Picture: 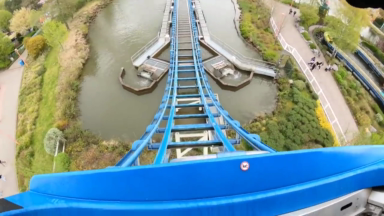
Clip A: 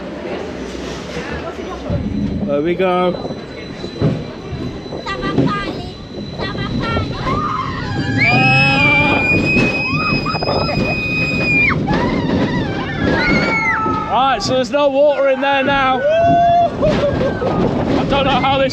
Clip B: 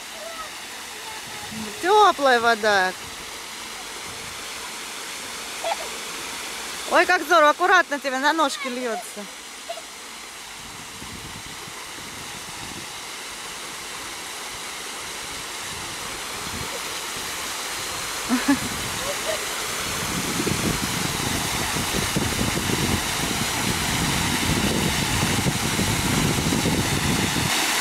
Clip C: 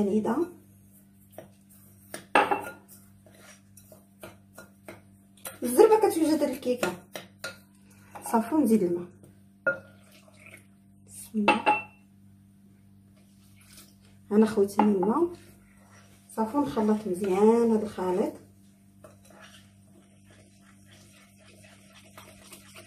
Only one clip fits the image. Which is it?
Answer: A